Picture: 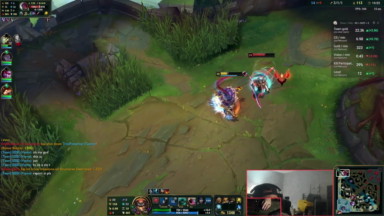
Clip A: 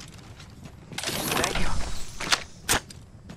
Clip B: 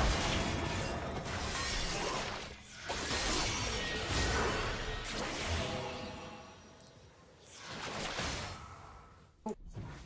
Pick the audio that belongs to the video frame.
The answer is B